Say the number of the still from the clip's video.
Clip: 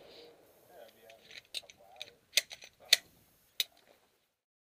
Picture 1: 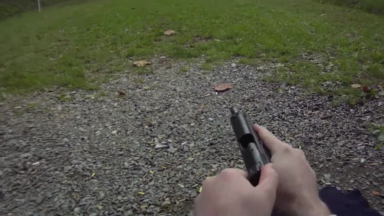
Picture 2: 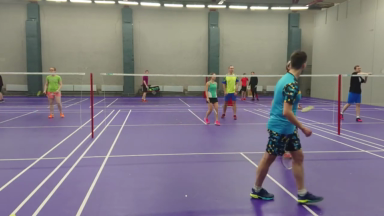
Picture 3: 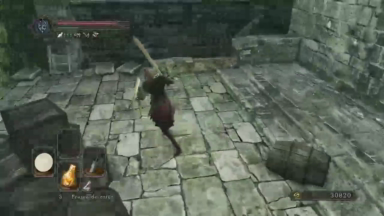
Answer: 1